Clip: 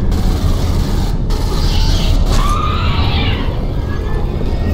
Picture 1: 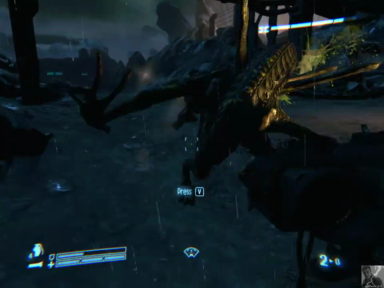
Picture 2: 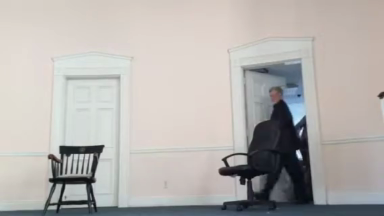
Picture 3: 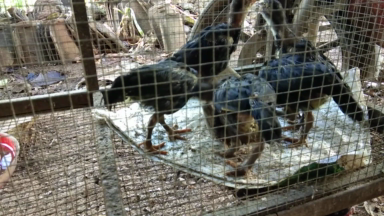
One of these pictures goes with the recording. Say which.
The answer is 1